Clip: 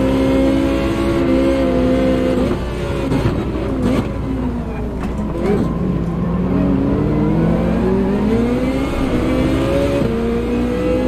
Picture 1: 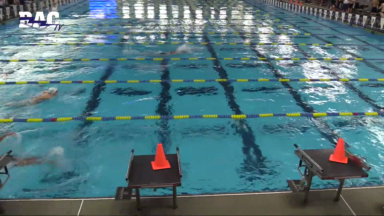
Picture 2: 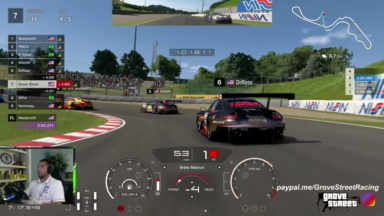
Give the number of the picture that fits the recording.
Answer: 2